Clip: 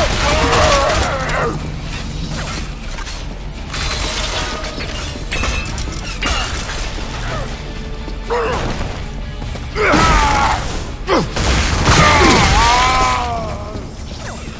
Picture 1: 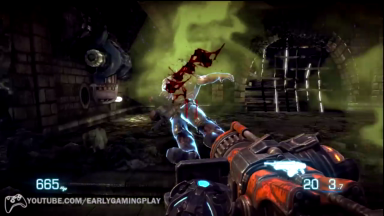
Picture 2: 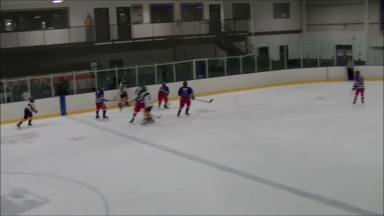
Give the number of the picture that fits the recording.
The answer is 1